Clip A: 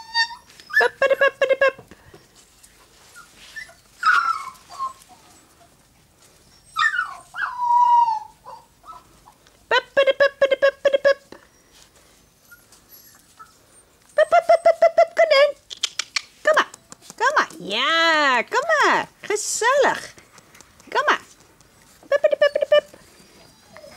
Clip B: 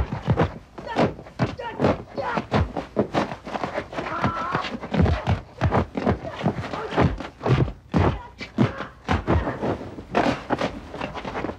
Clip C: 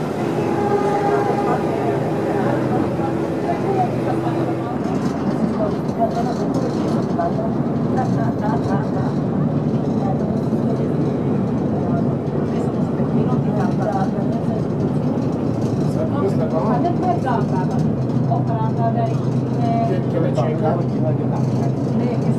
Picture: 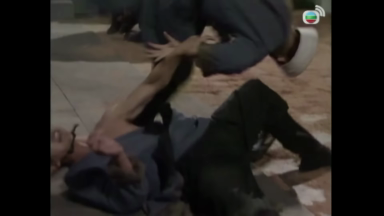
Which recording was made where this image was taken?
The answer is B